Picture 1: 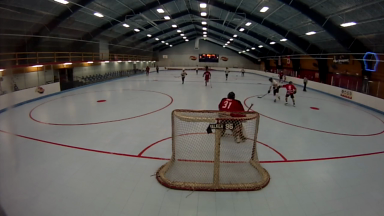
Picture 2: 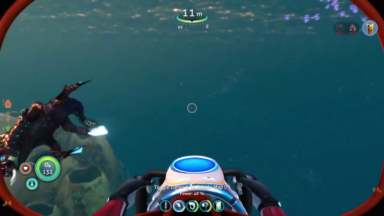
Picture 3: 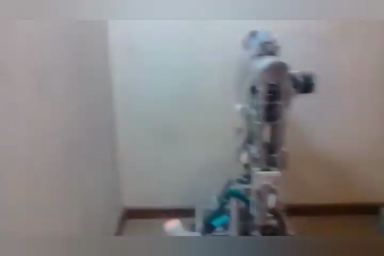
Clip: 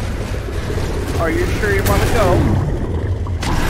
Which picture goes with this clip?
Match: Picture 2